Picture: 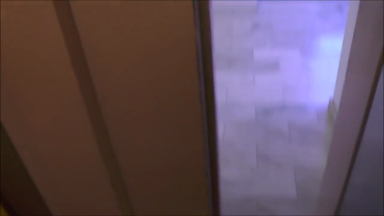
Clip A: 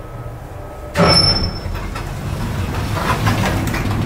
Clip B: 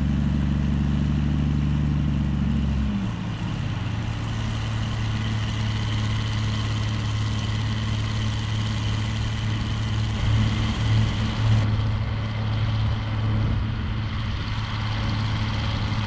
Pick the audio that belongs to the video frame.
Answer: A